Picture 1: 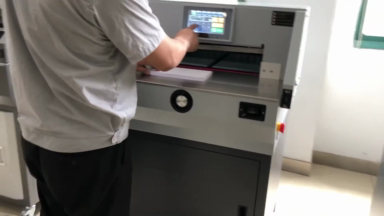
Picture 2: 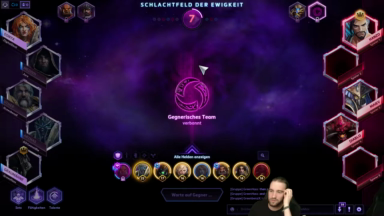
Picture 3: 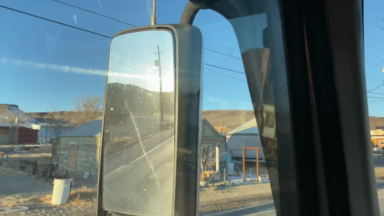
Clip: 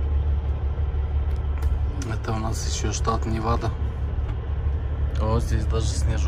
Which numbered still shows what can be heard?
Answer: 3